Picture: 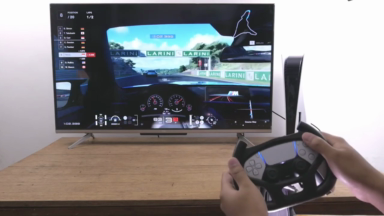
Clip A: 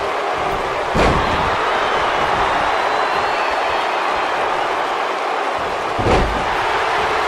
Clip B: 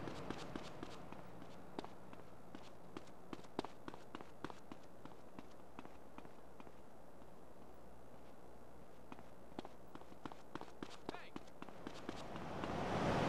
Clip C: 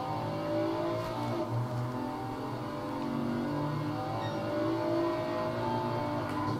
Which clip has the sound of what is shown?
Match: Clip C